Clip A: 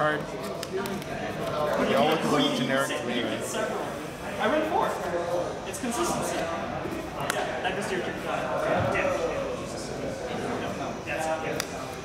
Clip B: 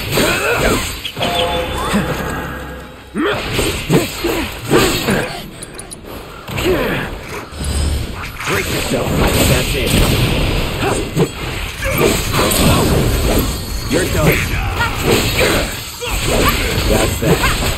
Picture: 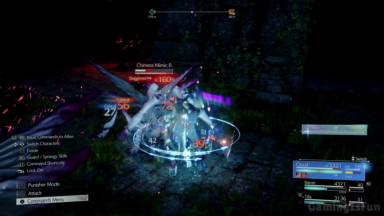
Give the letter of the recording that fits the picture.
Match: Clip B